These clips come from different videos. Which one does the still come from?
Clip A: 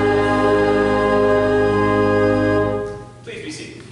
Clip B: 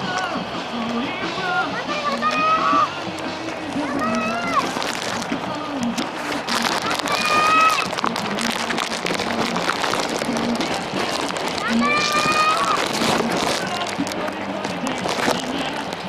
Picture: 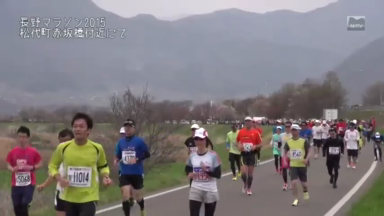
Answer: B